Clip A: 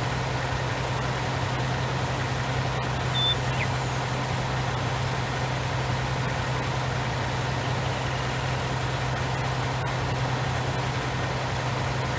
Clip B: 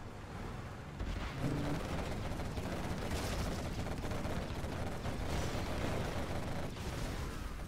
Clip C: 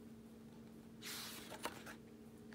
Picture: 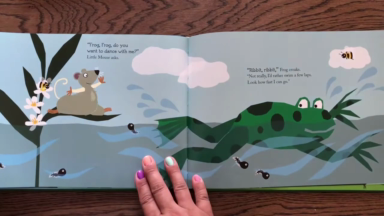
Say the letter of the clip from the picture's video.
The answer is C